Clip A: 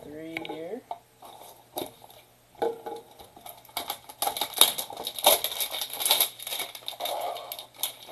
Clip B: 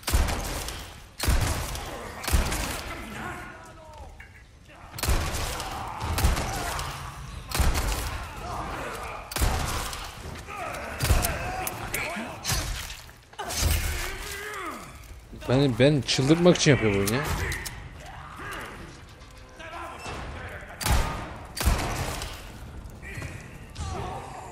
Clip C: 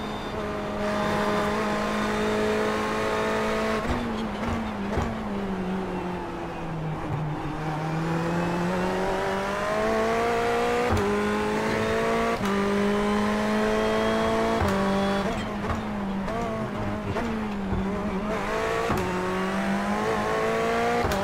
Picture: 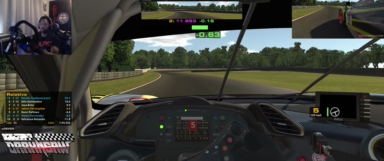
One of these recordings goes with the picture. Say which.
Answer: C